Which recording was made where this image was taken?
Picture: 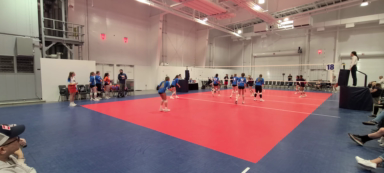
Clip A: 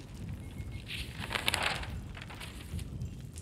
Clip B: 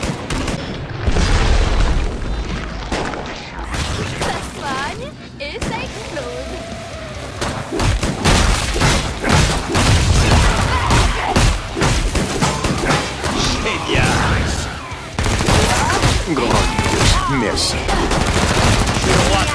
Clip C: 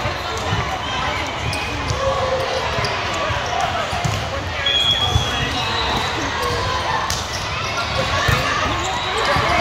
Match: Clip C